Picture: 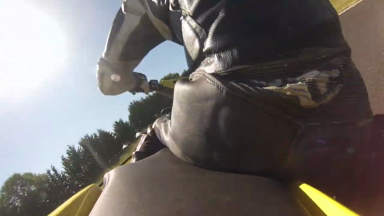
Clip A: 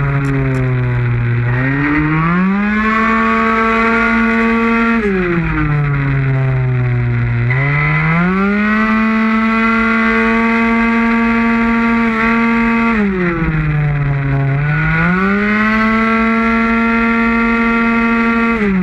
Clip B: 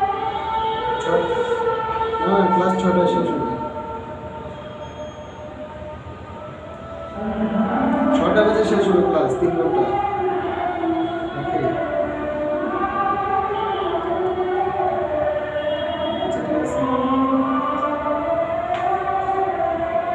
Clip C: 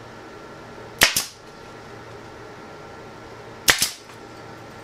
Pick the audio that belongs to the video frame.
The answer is A